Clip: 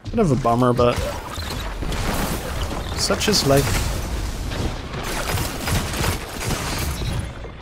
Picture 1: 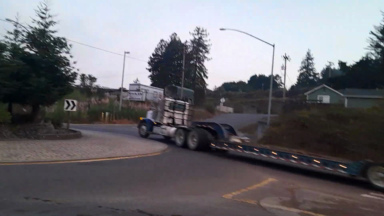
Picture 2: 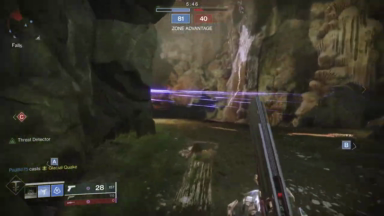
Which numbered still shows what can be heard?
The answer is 2